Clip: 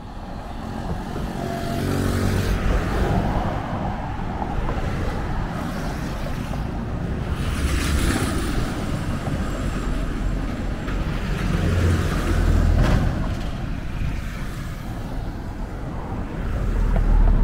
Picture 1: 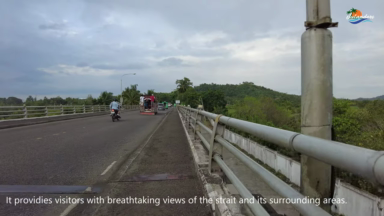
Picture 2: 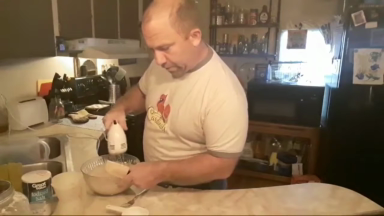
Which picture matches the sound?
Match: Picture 1